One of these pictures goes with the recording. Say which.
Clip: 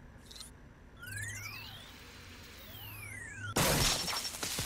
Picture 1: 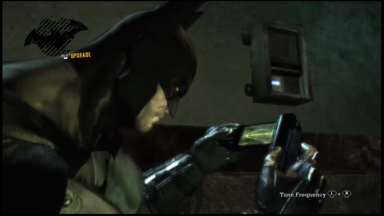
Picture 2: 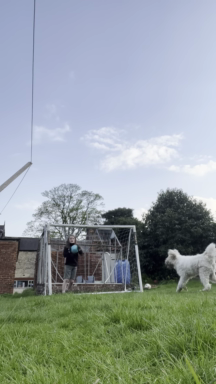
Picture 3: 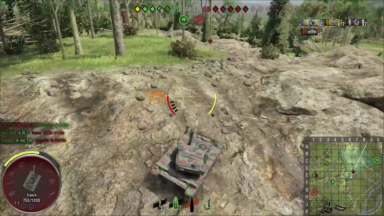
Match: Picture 1